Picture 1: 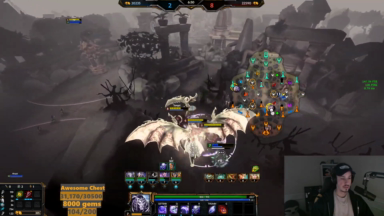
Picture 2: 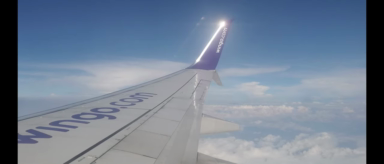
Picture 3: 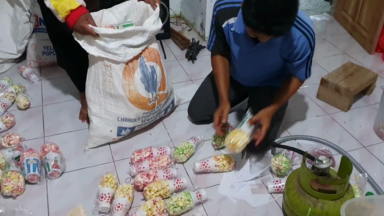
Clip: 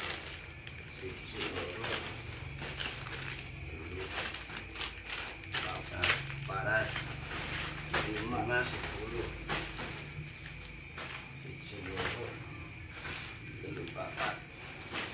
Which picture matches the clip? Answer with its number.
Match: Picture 3